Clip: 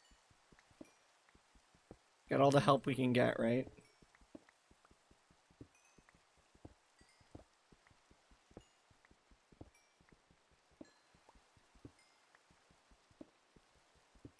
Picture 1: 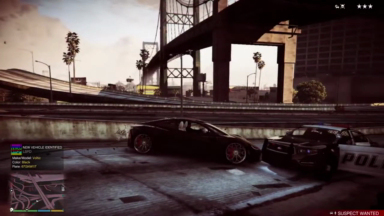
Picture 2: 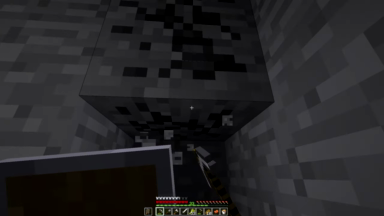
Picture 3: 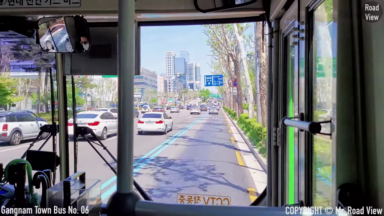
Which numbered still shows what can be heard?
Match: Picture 2